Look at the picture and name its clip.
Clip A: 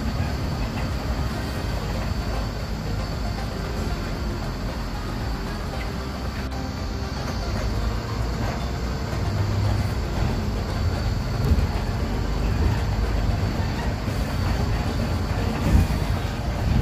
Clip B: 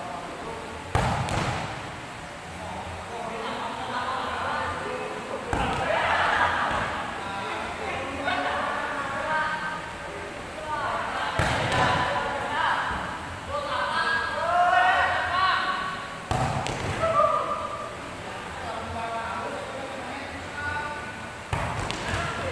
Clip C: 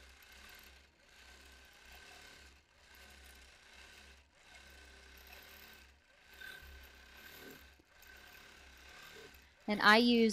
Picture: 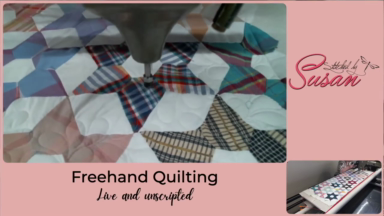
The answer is C